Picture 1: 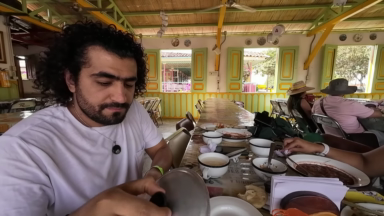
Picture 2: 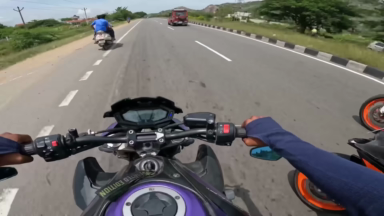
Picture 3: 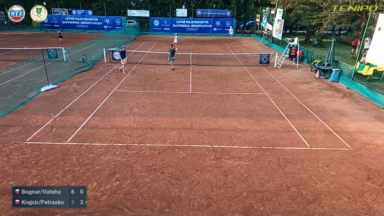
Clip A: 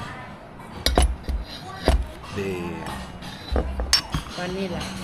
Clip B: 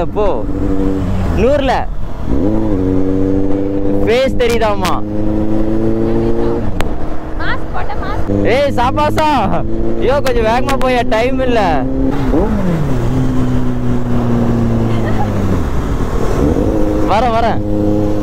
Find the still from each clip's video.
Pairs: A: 1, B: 2